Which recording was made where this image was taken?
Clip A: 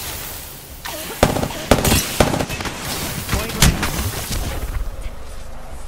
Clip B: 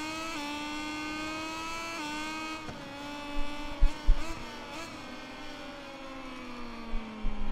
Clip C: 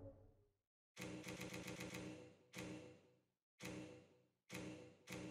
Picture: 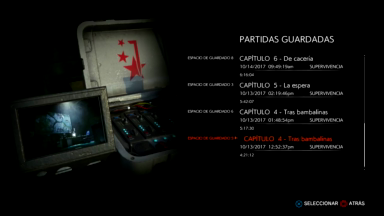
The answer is C